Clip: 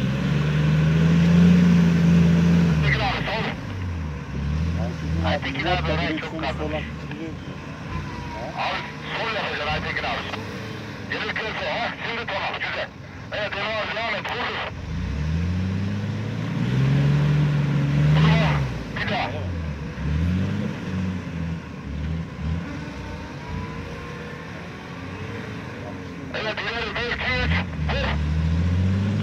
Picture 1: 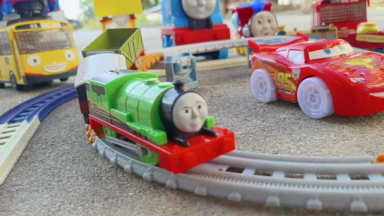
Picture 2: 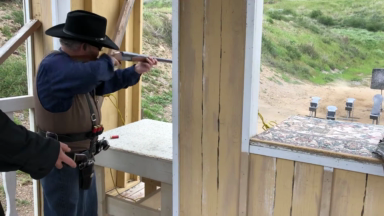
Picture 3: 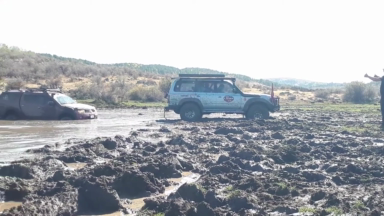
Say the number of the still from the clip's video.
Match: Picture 3